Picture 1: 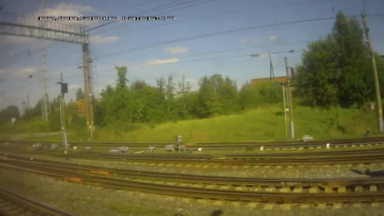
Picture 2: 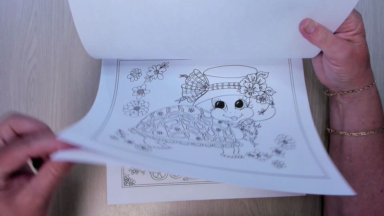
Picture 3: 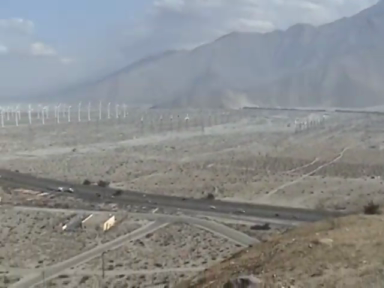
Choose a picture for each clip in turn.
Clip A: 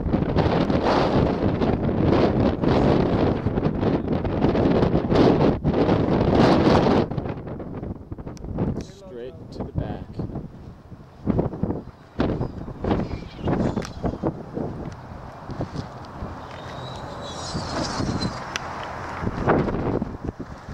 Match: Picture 3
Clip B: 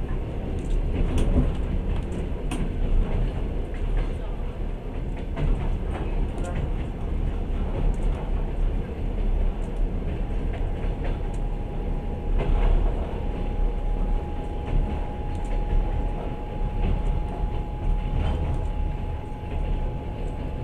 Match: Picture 1